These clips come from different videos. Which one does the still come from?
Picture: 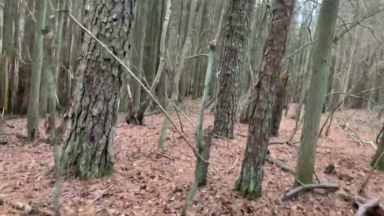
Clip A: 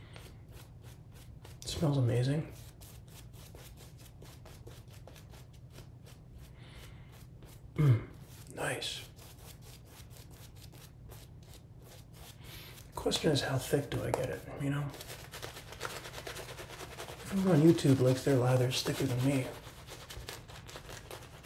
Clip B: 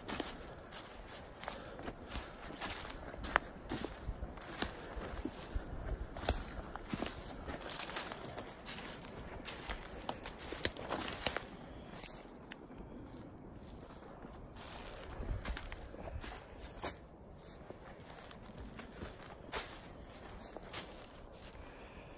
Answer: B